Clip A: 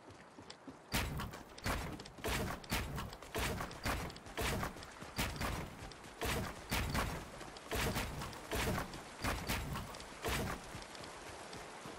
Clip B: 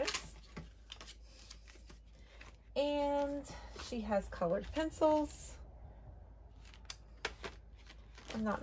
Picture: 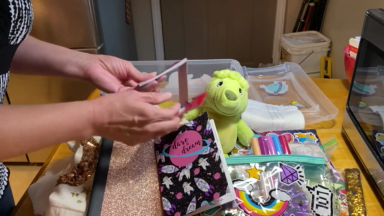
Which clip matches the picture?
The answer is B